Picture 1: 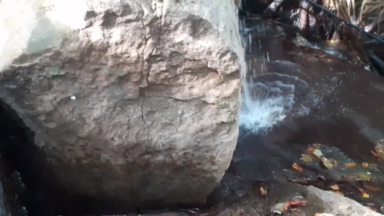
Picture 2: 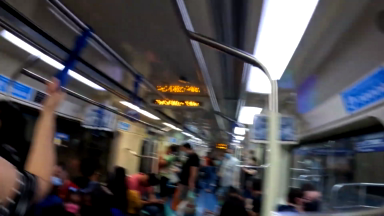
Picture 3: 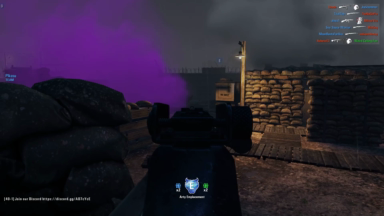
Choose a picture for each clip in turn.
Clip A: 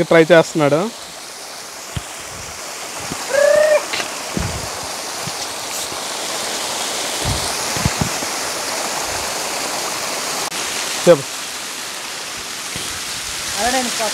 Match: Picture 1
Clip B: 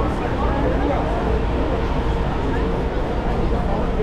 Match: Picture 2